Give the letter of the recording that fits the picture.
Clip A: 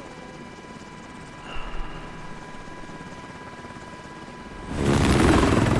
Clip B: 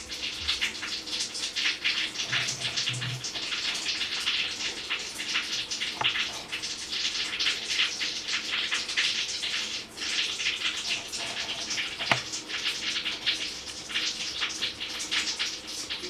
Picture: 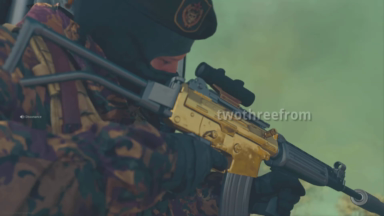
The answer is A